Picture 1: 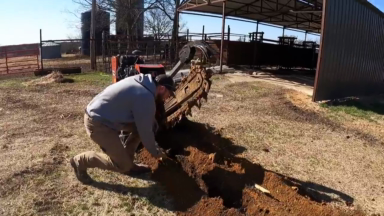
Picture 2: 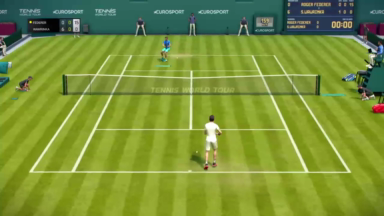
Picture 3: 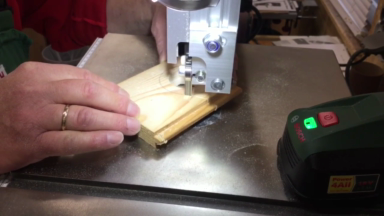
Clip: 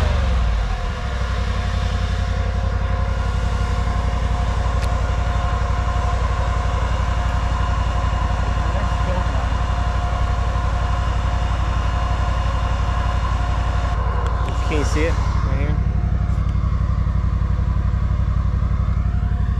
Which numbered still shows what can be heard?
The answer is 1